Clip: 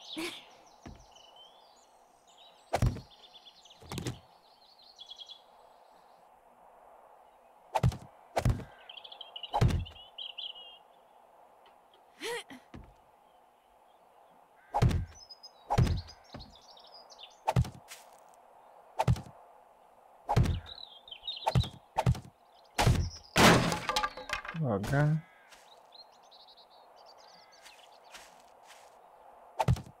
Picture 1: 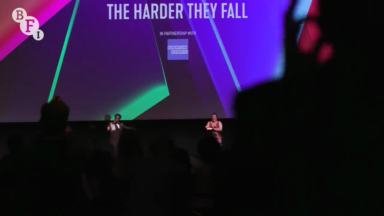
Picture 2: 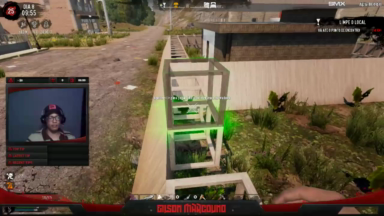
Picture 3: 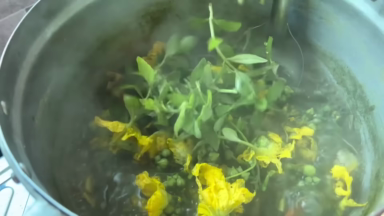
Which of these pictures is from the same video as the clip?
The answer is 2